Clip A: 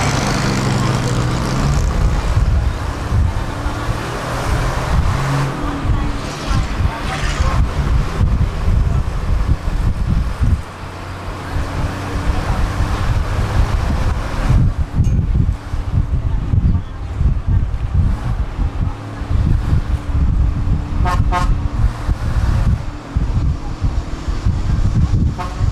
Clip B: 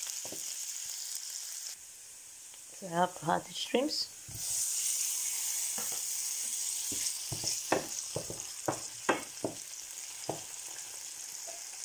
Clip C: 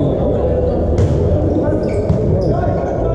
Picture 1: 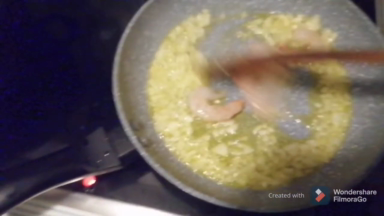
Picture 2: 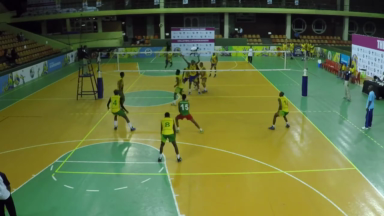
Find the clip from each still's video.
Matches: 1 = B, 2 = C